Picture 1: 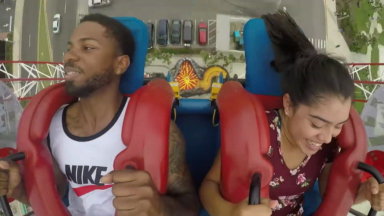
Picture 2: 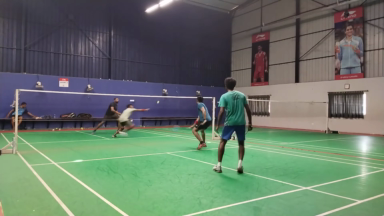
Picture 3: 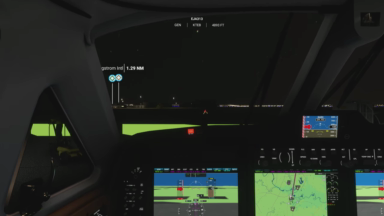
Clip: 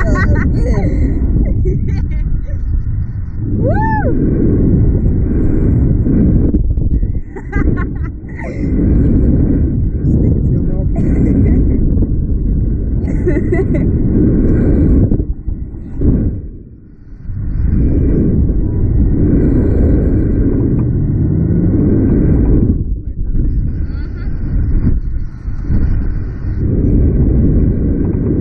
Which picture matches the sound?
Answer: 1